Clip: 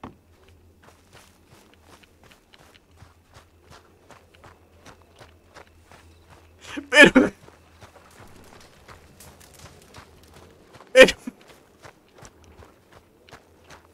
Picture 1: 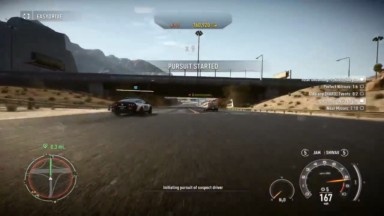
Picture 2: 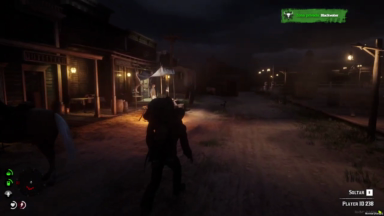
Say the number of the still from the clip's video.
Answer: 2